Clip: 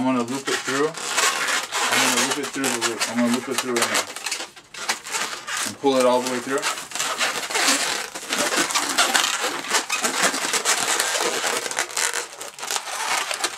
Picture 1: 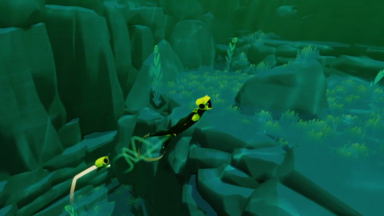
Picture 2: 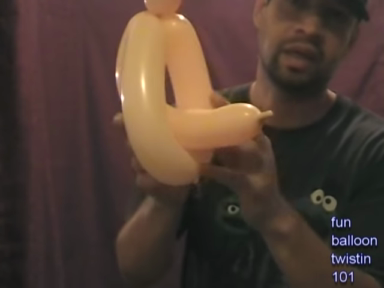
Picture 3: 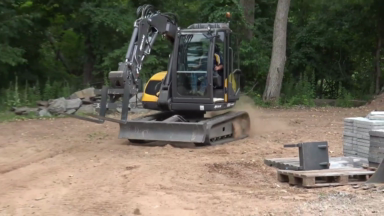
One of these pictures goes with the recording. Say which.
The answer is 2